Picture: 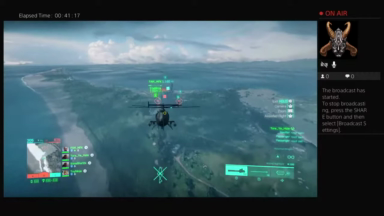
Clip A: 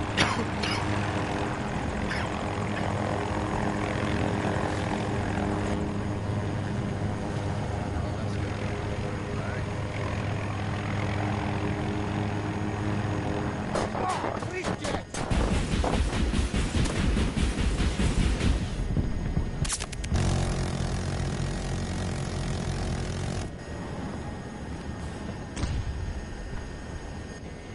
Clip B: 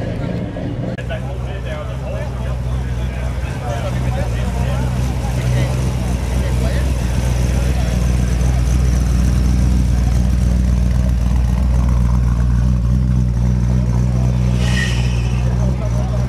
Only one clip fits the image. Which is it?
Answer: A